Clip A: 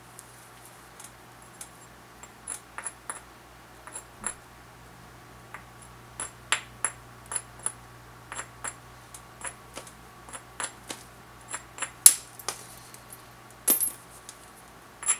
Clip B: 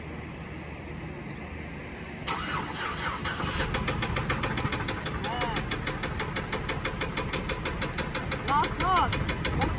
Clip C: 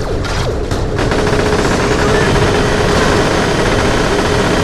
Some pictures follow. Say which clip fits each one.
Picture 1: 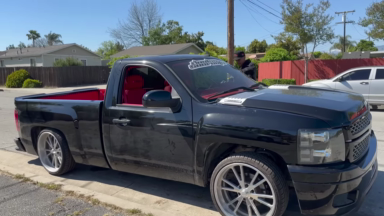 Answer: B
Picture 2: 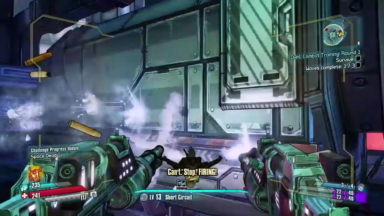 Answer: C